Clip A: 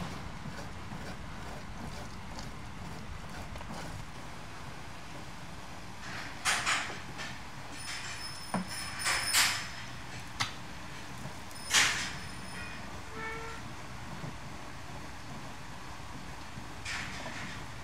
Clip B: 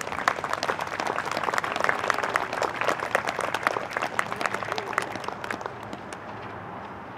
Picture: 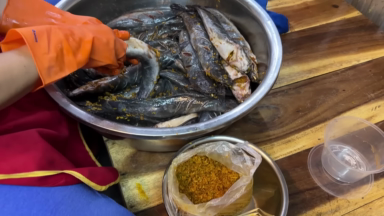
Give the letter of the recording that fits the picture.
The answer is A